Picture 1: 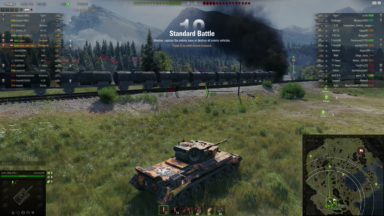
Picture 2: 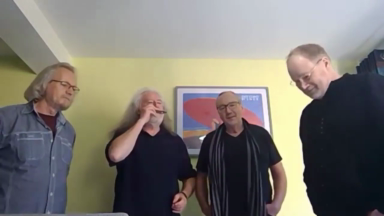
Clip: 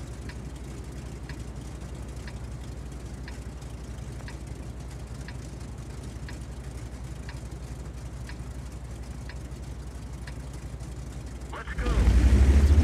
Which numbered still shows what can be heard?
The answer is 1